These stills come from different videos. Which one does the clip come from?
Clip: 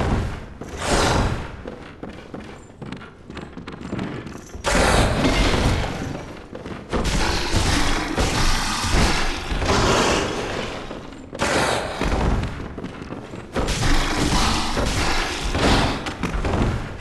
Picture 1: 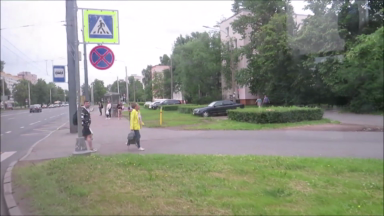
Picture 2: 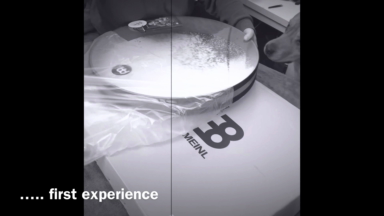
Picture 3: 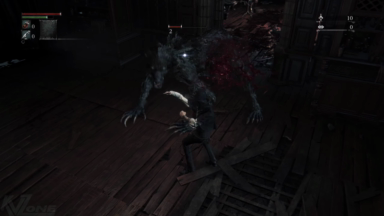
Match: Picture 3